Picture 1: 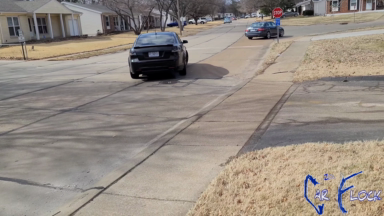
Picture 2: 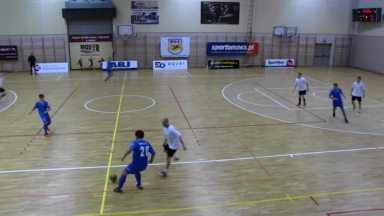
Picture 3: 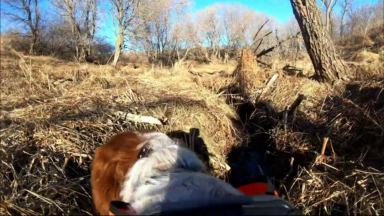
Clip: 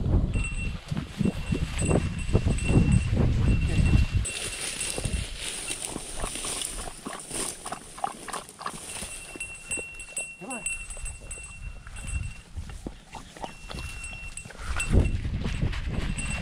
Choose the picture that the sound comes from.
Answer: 3